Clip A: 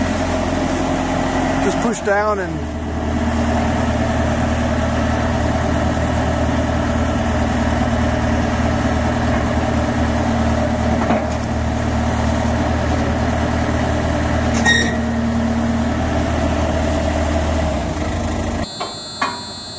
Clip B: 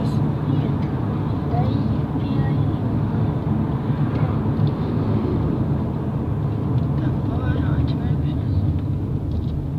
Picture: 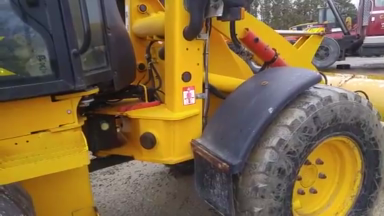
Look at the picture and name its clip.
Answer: A